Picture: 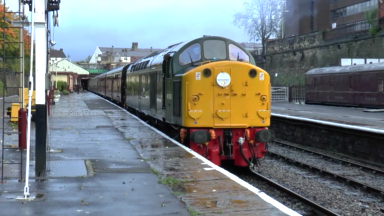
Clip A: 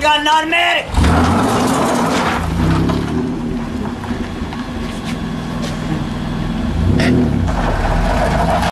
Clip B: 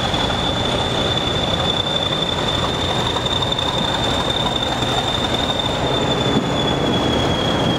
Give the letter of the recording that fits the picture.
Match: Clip B